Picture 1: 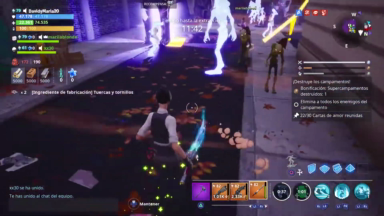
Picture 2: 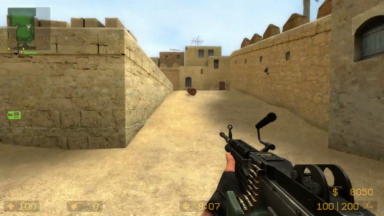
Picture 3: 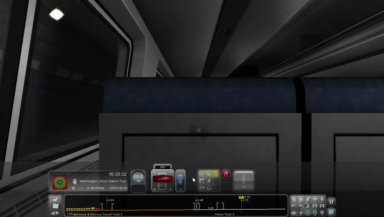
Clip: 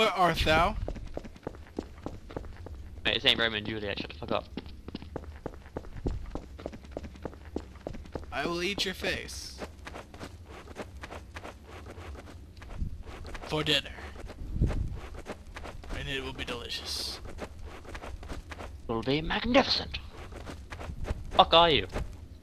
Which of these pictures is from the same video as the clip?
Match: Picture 2